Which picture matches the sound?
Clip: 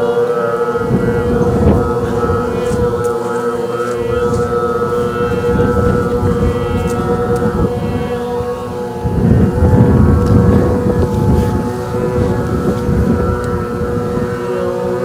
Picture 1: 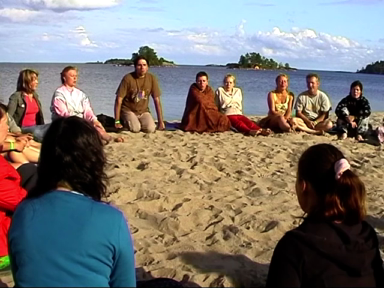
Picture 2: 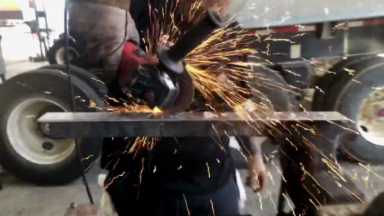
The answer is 1